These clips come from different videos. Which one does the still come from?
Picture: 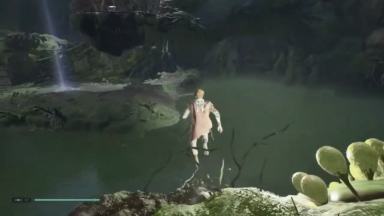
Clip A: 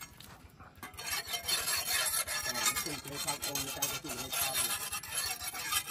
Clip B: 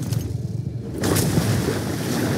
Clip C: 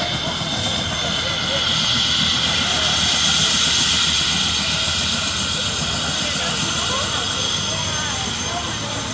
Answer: B